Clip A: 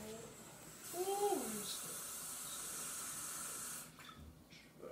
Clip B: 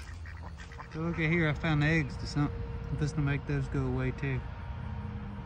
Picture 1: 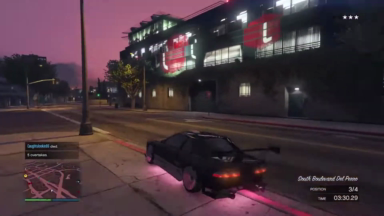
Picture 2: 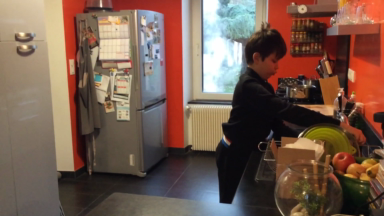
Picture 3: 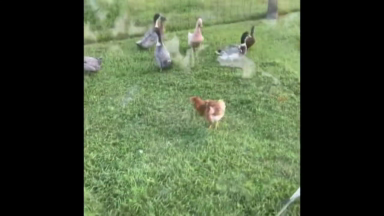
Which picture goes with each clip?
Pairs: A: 2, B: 3